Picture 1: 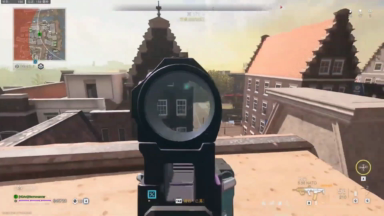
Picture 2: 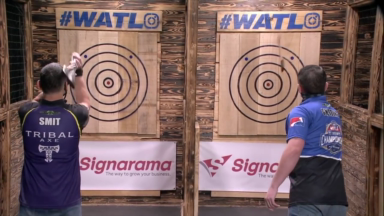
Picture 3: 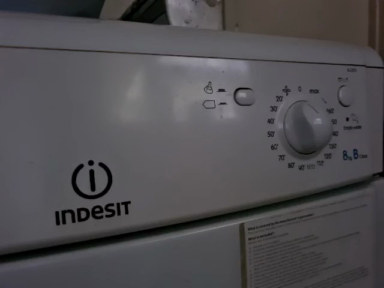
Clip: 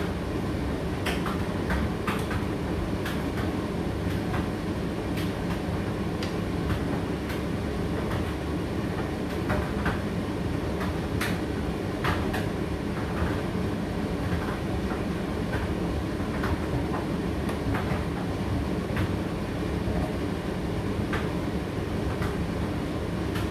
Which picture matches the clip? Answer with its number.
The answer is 3